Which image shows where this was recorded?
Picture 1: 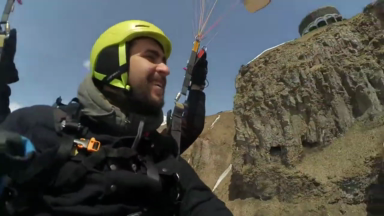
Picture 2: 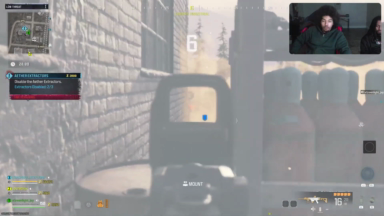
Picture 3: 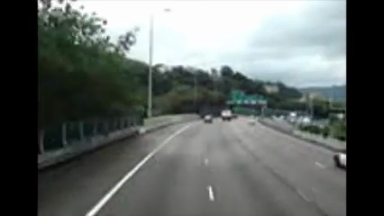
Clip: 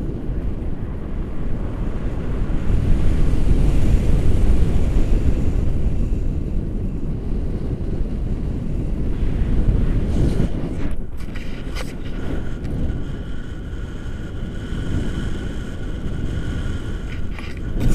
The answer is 1